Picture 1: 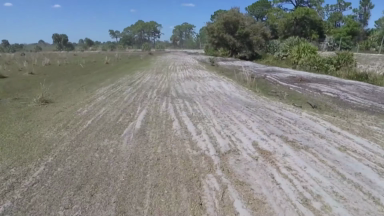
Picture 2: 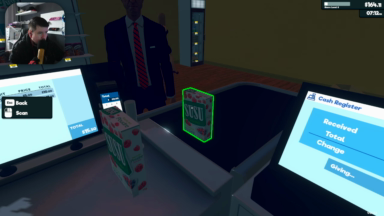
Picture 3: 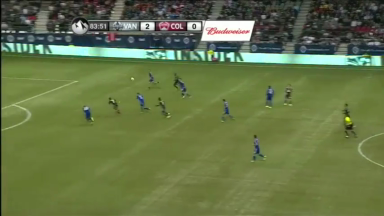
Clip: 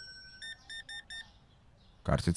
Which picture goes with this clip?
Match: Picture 2